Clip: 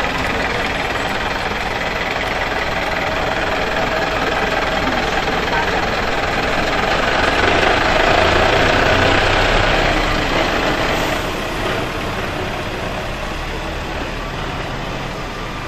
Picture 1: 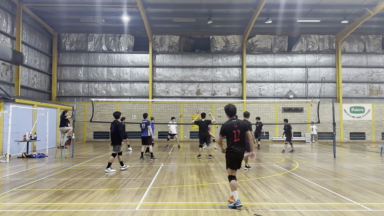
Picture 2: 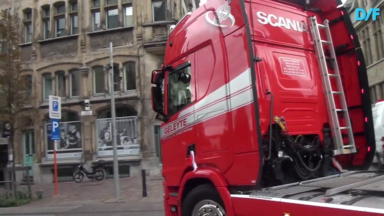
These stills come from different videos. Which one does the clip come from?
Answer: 2